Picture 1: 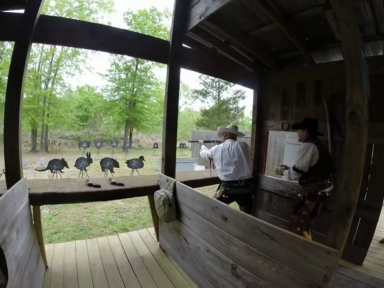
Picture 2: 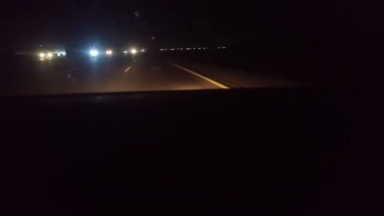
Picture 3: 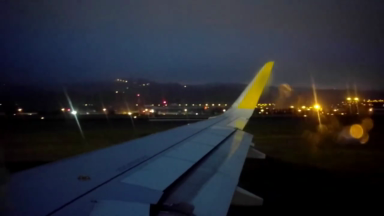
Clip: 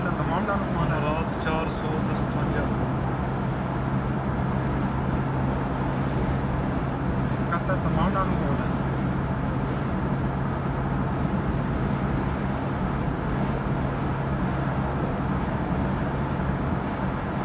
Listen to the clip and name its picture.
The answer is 2